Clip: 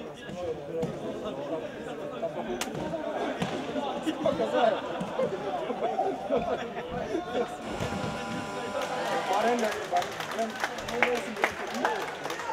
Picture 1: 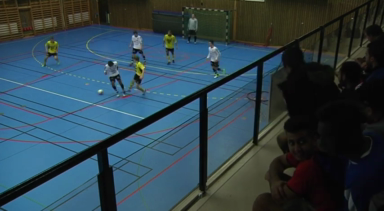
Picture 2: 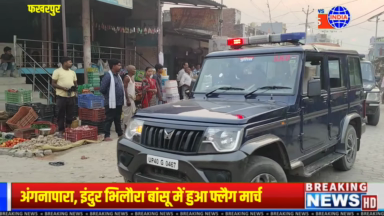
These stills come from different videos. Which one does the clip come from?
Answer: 1